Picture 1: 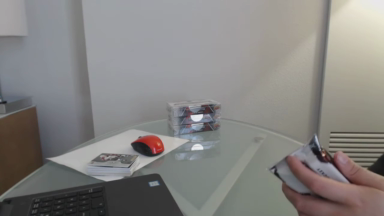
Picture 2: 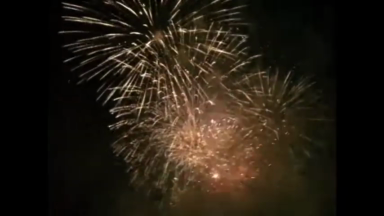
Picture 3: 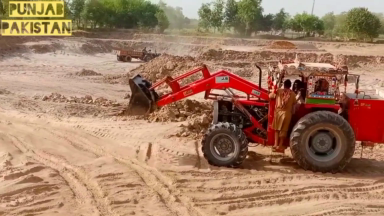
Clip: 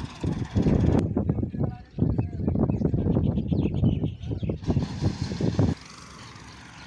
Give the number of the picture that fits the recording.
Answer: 3